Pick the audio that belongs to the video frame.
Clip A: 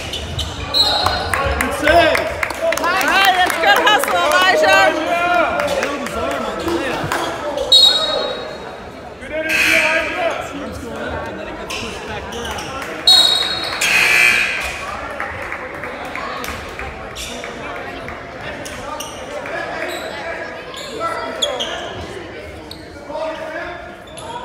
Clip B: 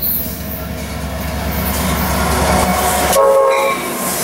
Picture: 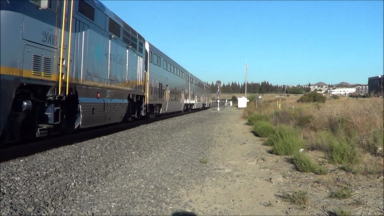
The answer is B